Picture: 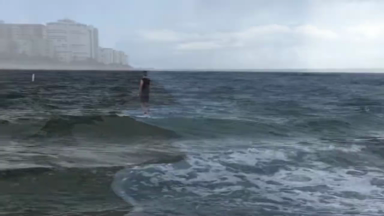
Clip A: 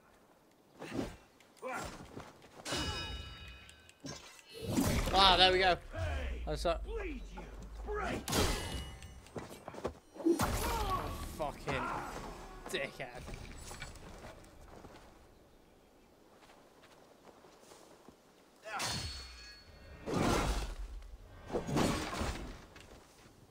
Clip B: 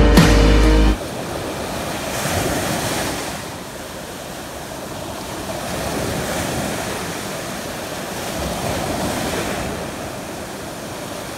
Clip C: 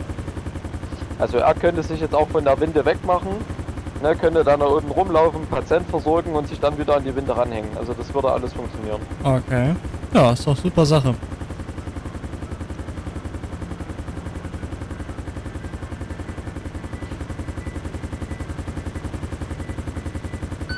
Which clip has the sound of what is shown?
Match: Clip B